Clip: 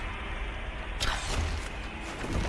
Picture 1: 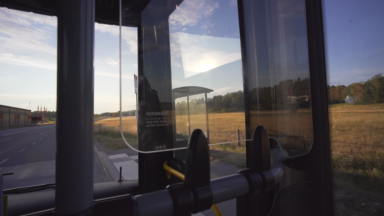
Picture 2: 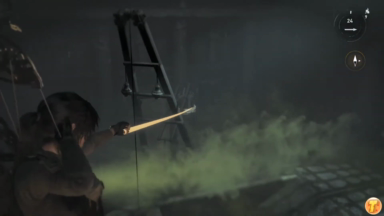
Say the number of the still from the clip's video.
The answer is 2